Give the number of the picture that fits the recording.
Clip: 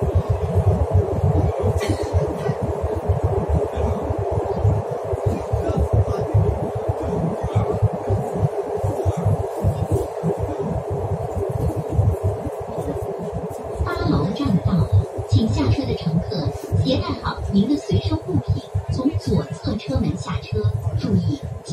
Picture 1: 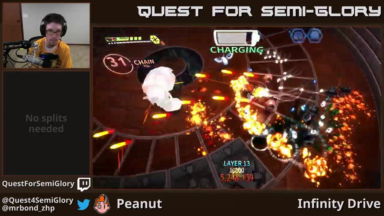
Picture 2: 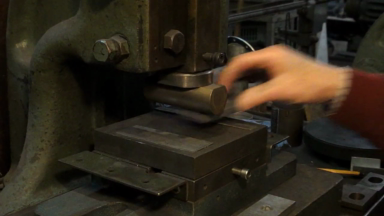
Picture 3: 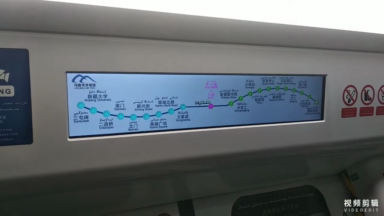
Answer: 3